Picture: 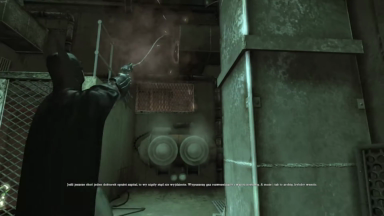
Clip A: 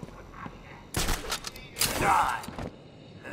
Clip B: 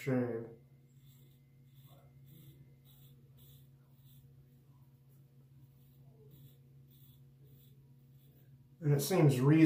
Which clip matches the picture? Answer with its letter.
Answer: A